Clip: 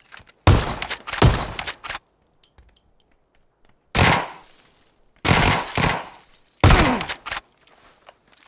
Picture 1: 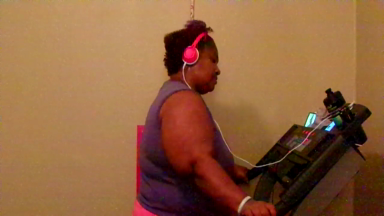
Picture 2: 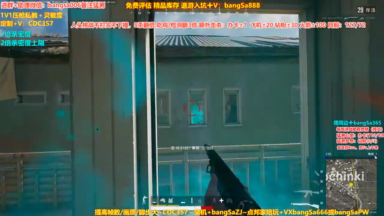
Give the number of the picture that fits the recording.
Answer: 2